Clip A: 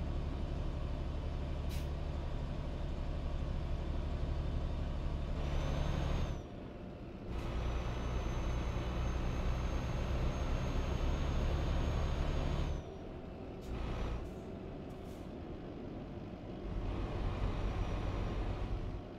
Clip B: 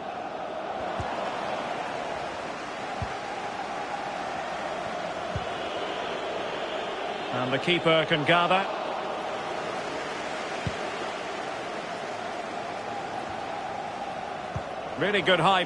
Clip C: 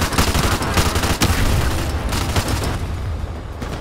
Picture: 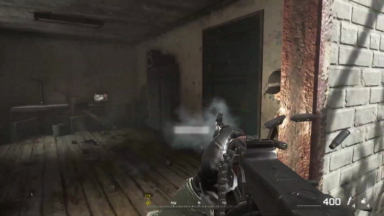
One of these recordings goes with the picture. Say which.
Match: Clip C